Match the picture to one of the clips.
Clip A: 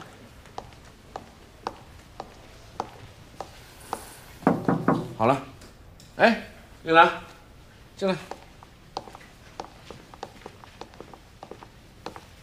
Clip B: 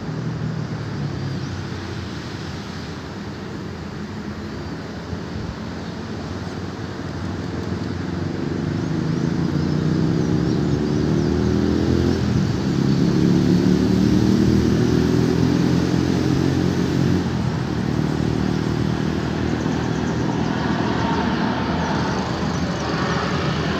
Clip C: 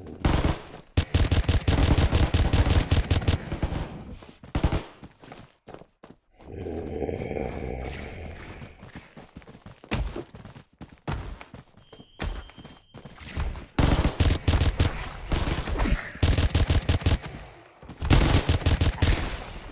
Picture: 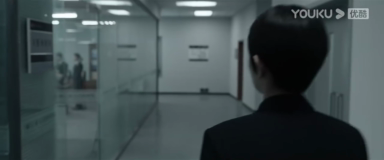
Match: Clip A